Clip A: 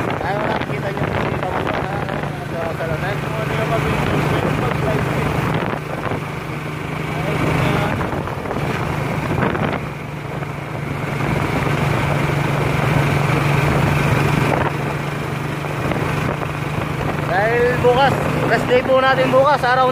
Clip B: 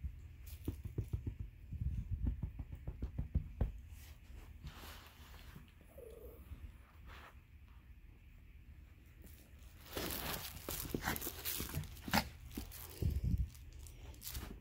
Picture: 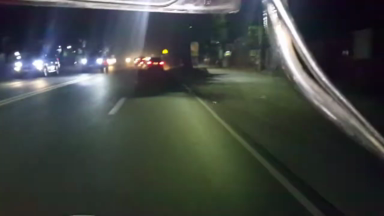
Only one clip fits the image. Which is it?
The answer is A